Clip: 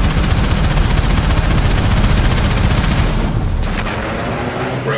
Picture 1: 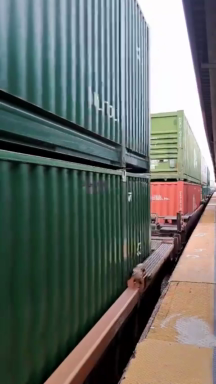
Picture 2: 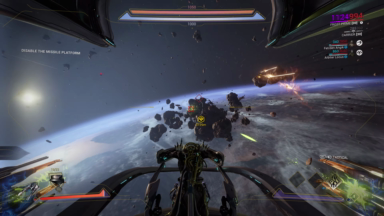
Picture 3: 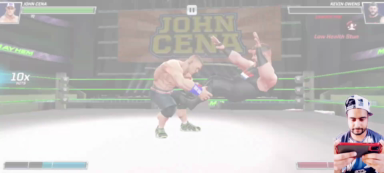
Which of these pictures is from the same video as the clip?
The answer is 2